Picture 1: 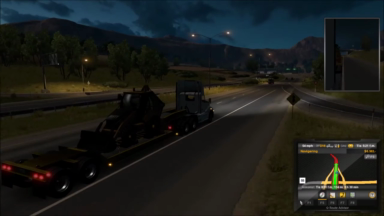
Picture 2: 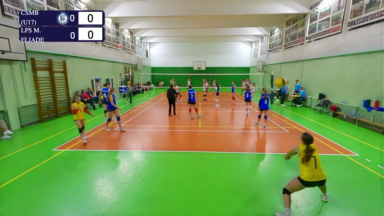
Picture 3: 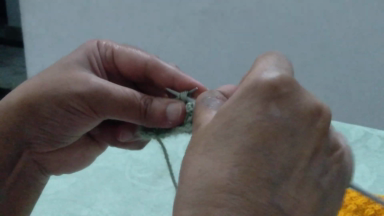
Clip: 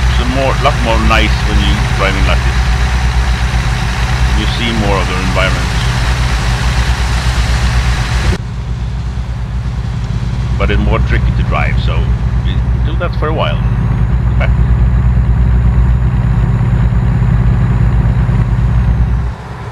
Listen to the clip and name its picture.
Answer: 1